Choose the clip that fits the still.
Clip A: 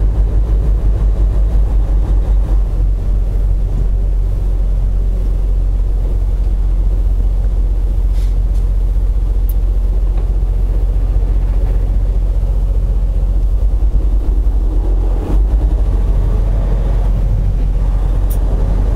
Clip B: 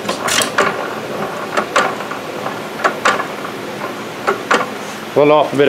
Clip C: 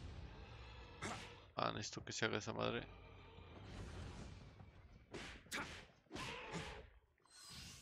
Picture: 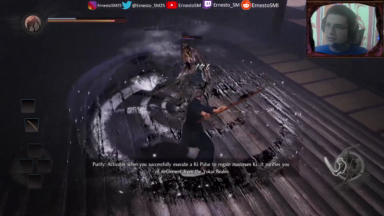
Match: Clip C